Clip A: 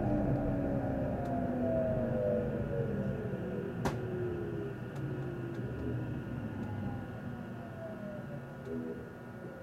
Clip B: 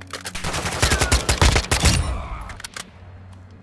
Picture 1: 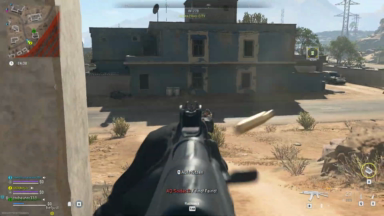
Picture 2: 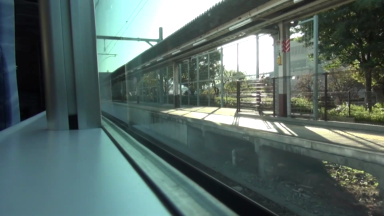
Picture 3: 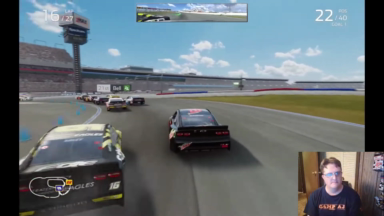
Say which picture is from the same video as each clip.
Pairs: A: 2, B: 1